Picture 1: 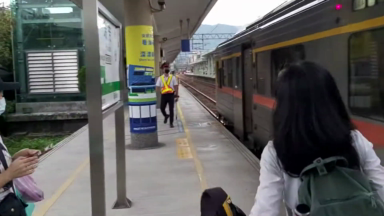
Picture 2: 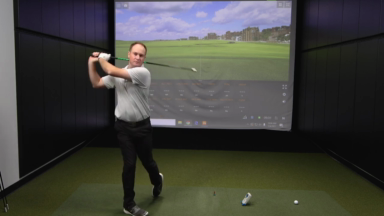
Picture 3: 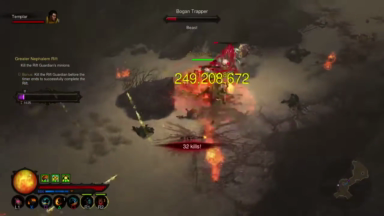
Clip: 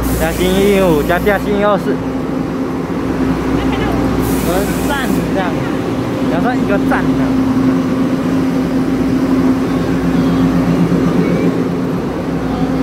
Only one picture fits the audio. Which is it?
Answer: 1